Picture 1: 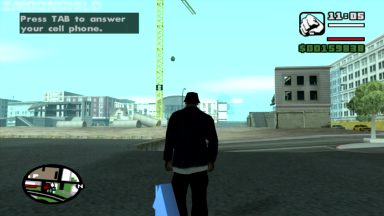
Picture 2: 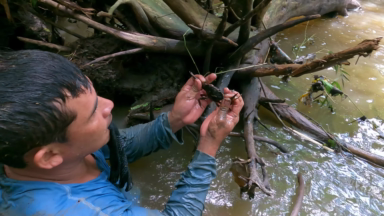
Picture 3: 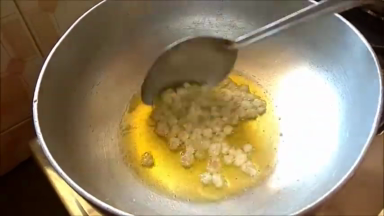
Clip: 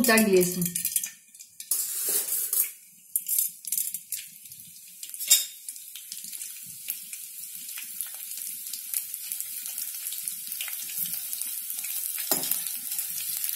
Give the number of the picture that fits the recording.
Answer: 3